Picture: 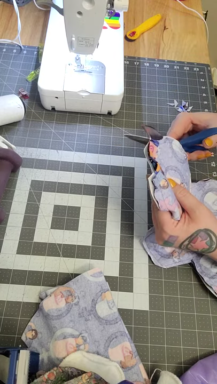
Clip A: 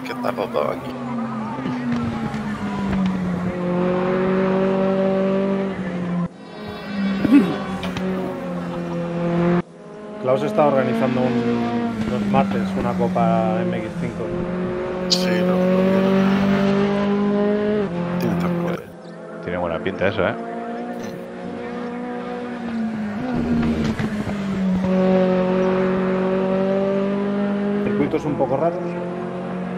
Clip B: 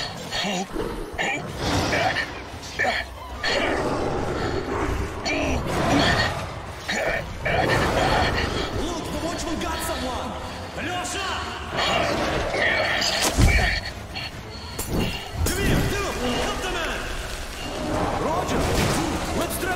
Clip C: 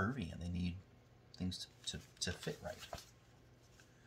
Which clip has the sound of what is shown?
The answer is C